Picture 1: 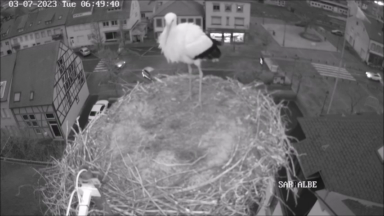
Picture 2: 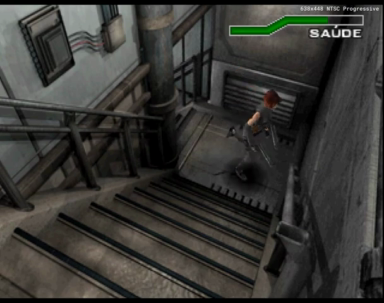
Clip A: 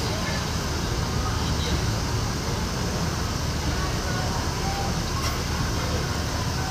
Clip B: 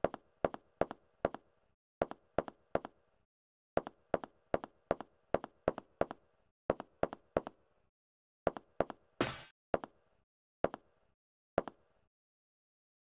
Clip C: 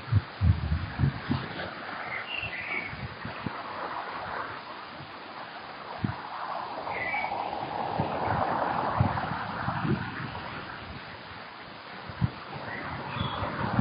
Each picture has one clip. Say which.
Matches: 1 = C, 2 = B